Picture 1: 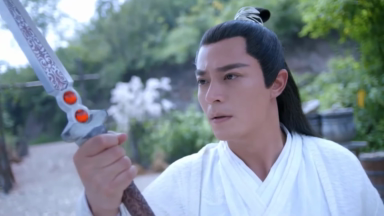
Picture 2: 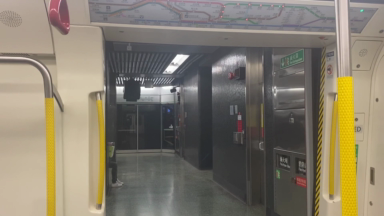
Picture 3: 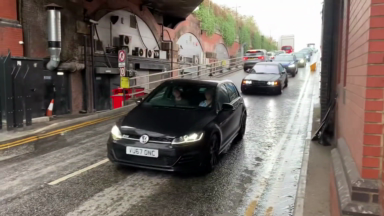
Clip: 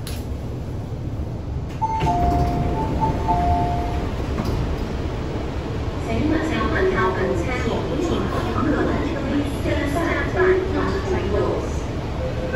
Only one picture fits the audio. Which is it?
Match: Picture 2